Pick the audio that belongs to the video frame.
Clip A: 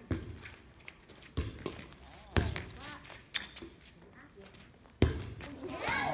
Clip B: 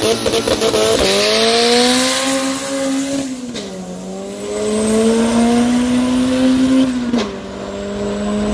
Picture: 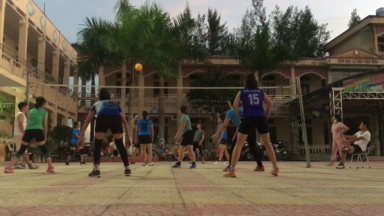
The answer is A